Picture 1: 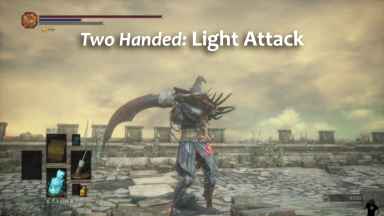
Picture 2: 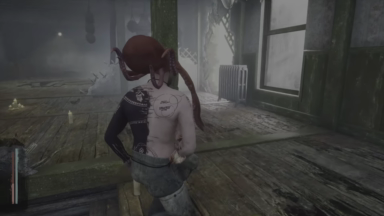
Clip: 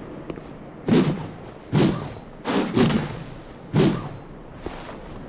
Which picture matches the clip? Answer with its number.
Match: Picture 1